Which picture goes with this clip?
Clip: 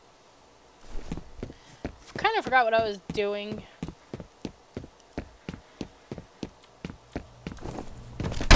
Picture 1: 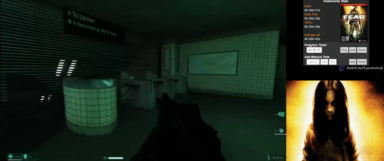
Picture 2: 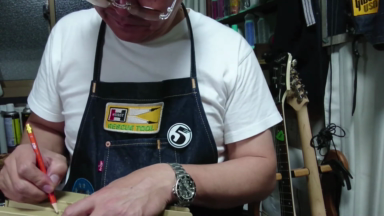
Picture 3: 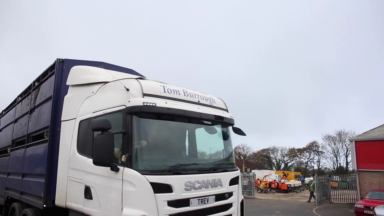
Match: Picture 1